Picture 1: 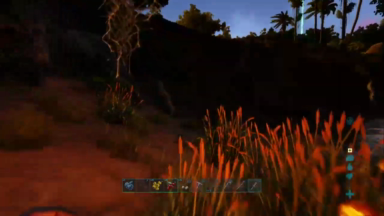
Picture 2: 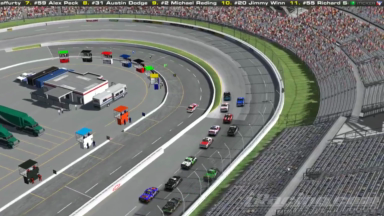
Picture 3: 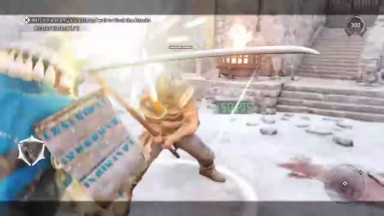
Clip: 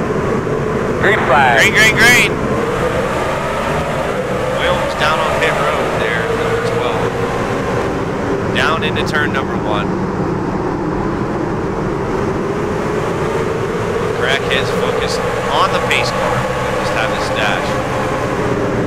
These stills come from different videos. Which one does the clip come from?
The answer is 2